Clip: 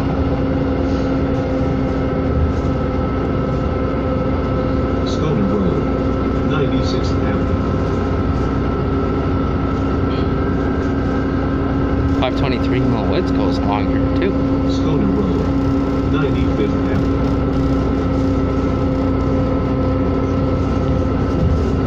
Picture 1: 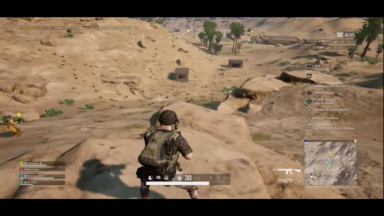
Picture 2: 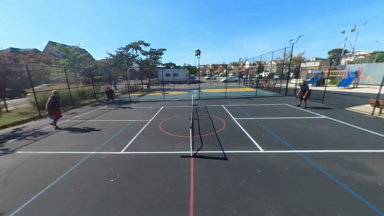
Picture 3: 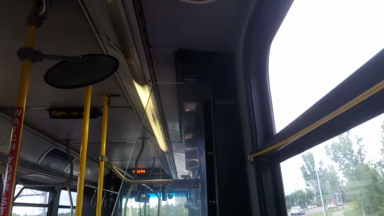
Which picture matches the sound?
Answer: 3